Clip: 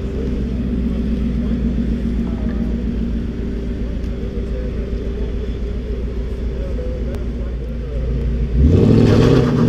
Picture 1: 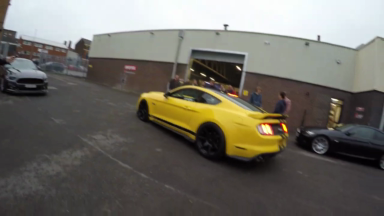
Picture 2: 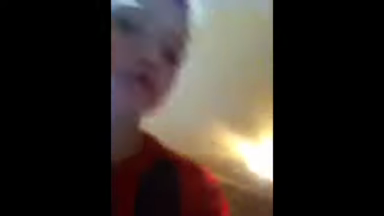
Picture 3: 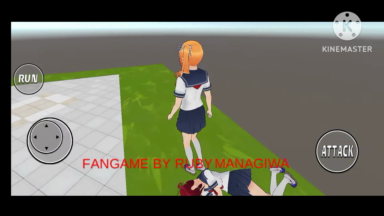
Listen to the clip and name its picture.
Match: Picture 1